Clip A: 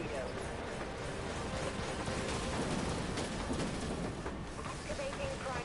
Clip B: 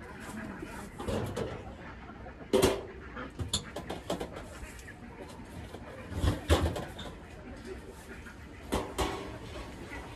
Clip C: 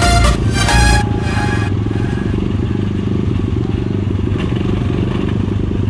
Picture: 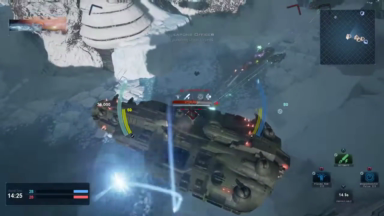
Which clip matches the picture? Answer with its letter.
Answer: A